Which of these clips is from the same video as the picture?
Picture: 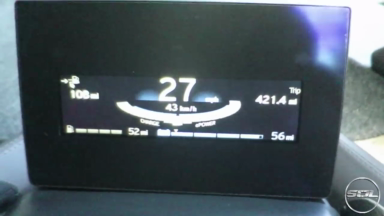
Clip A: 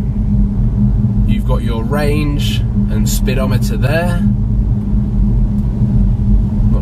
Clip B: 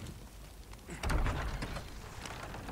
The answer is A